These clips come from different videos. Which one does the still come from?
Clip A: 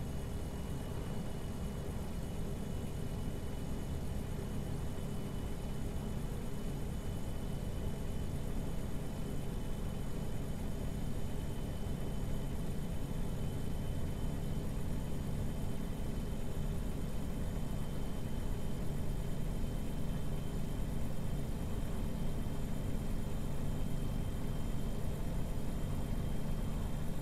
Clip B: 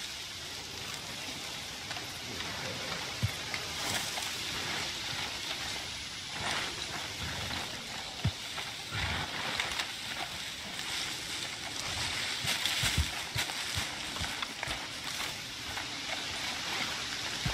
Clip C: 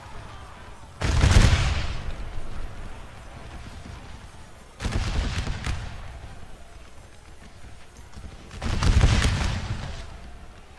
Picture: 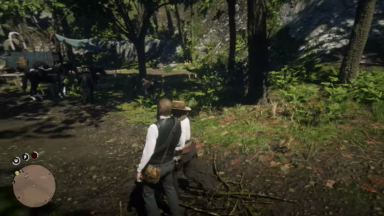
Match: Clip B